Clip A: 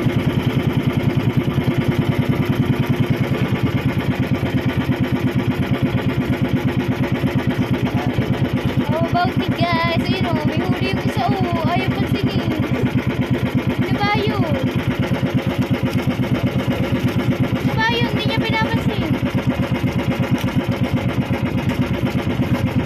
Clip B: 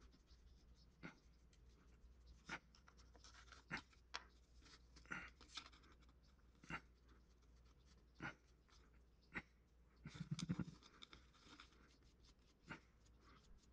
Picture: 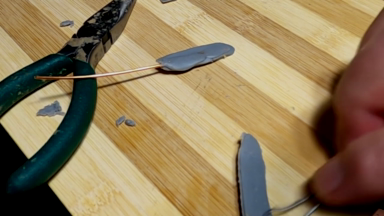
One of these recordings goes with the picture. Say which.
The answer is B